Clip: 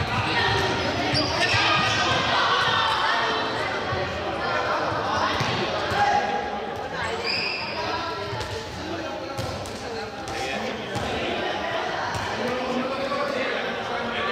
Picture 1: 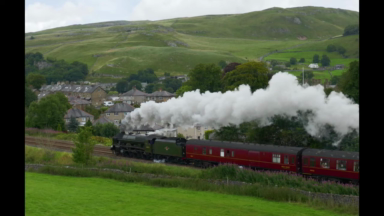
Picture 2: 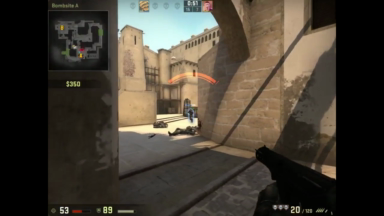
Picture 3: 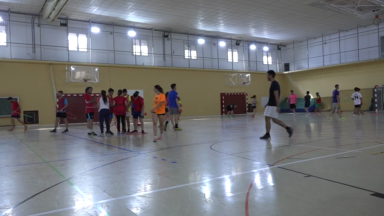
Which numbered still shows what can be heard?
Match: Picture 3